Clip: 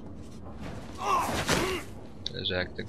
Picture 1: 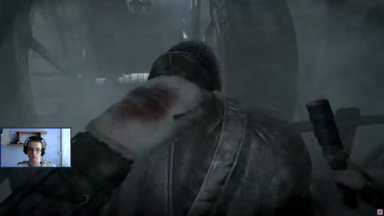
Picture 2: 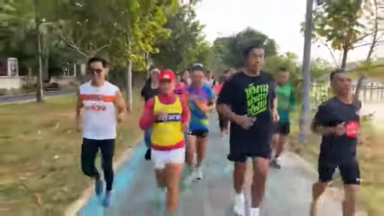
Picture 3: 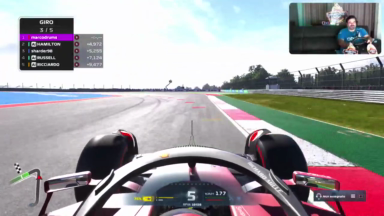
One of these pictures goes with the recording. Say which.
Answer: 1